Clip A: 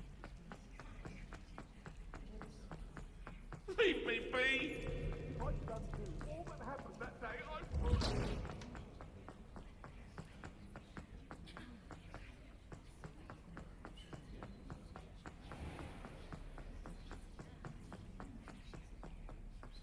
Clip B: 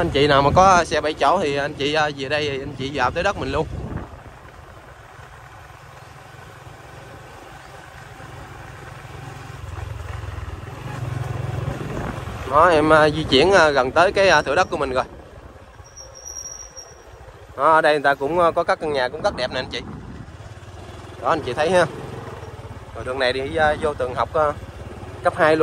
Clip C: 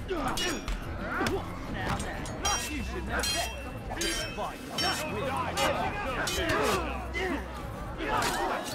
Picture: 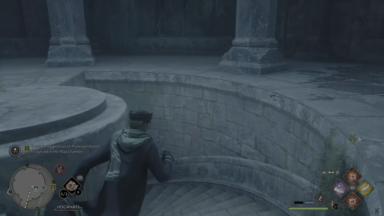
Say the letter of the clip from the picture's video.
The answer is A